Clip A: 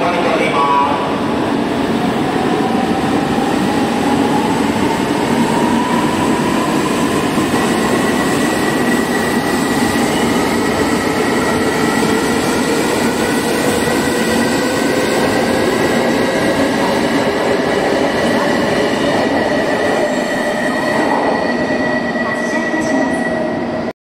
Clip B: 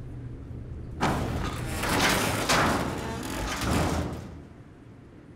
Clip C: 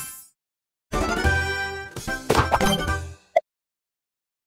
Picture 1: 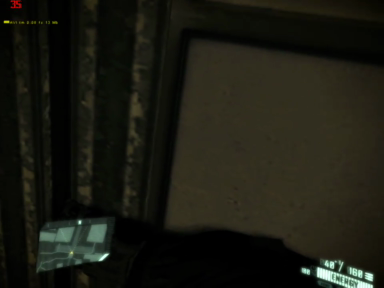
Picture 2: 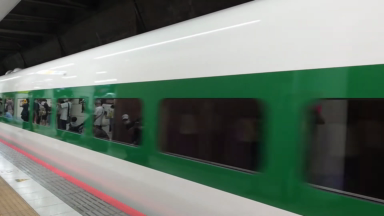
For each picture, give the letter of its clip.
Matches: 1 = B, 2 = A